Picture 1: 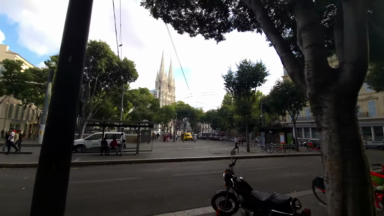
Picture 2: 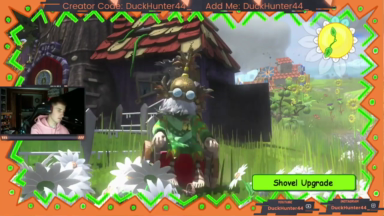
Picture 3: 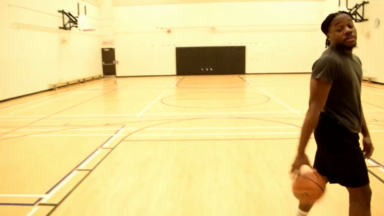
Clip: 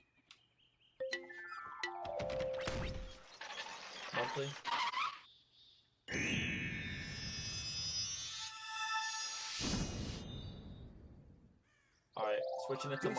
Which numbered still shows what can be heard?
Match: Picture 2